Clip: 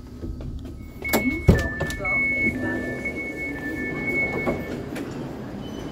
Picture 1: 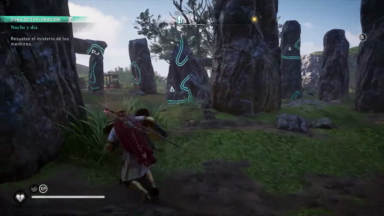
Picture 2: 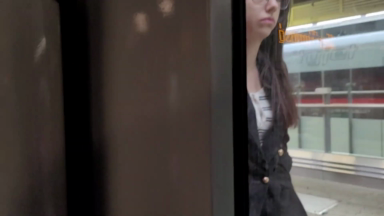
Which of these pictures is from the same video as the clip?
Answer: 2